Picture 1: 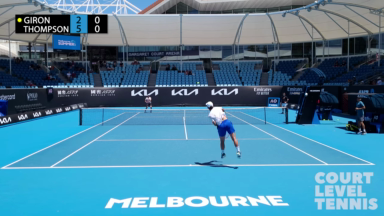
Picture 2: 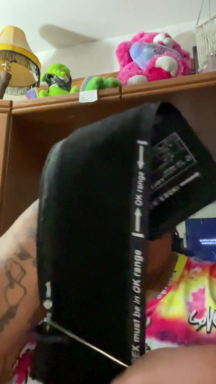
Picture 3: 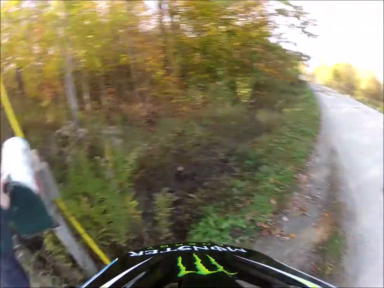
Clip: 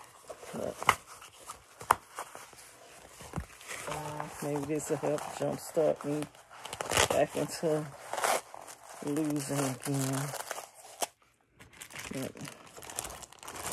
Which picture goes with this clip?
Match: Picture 2